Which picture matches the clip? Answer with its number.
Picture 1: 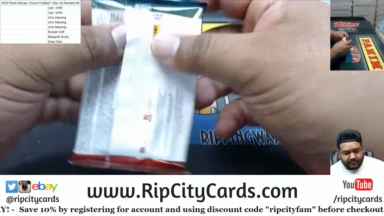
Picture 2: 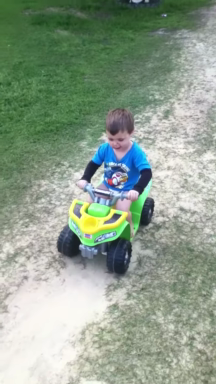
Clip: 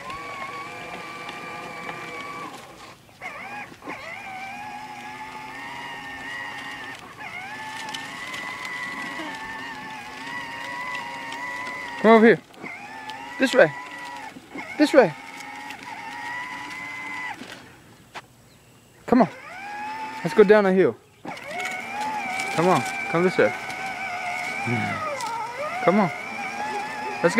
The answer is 2